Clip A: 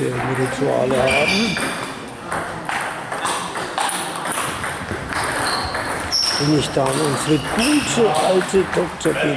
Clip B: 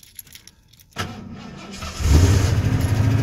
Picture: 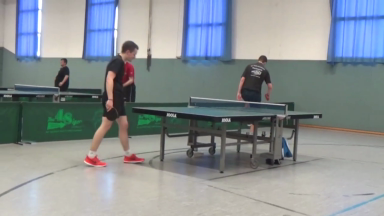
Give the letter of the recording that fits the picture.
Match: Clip A